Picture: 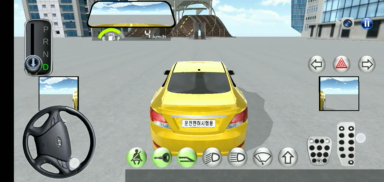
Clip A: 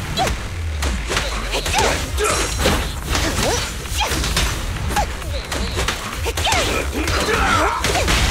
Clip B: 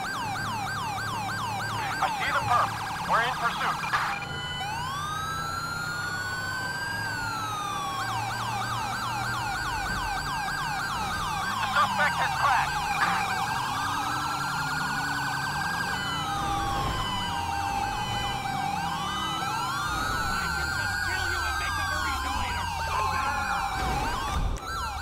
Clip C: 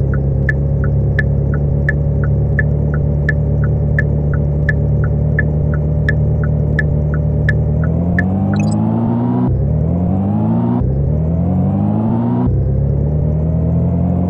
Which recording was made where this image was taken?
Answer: C